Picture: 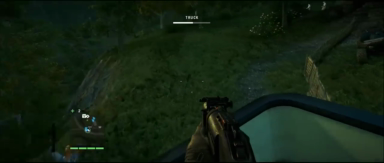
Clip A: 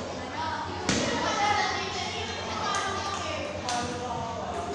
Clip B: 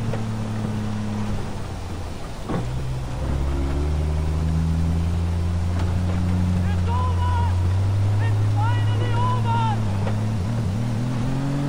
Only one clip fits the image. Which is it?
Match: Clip B